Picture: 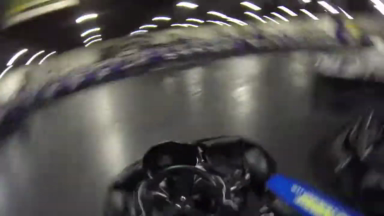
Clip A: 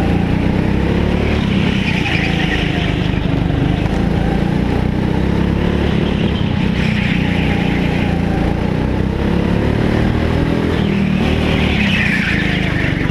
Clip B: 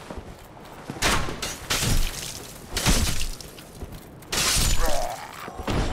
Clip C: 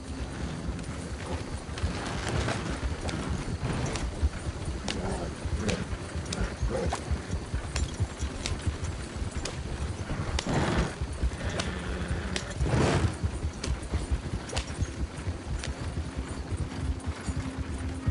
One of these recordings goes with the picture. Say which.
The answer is A